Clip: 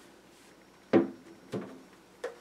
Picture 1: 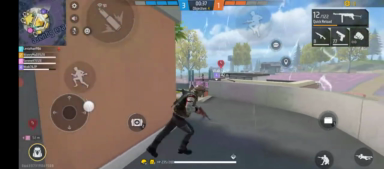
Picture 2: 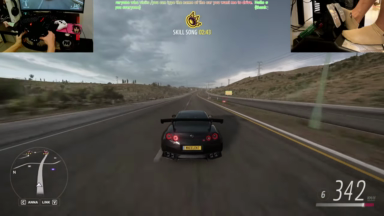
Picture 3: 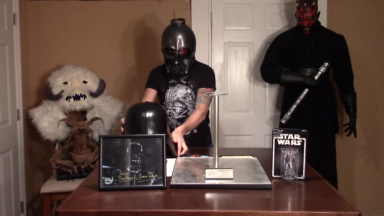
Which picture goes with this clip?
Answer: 3